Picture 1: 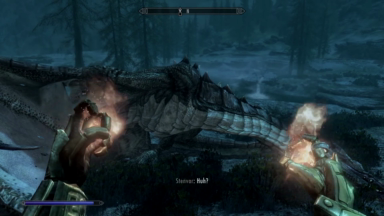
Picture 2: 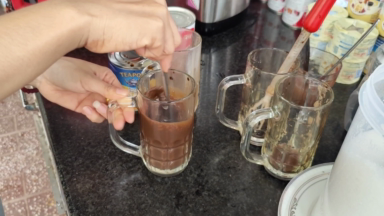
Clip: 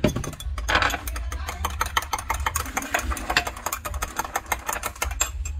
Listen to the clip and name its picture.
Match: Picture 2